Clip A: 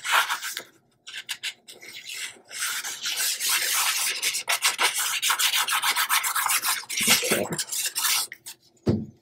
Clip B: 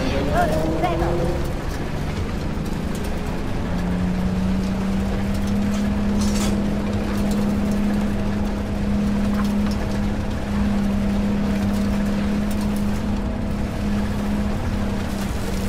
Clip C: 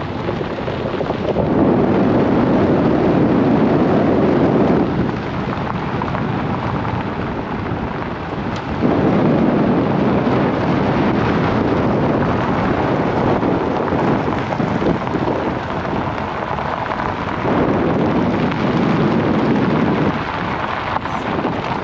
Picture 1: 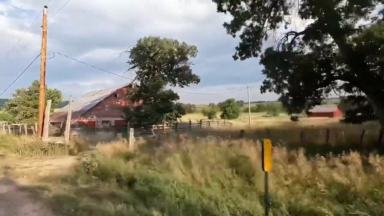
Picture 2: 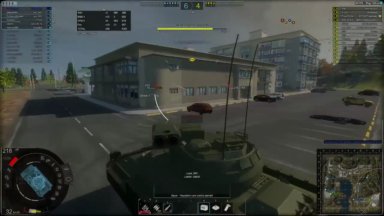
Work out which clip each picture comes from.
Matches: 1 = C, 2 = B